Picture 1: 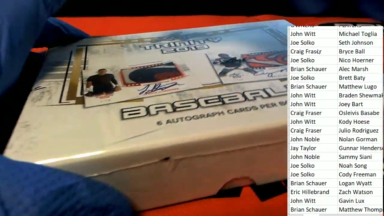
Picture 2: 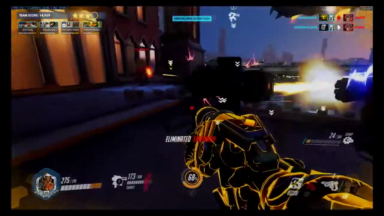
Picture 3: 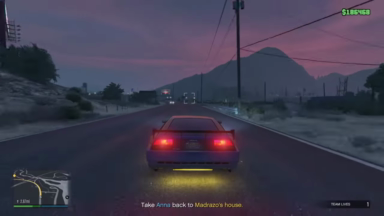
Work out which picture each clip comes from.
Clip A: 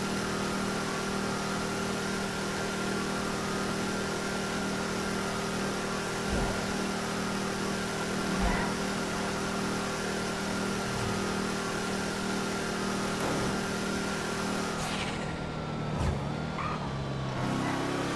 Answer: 3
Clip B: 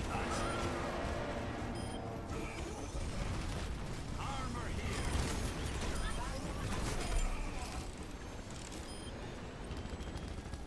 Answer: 2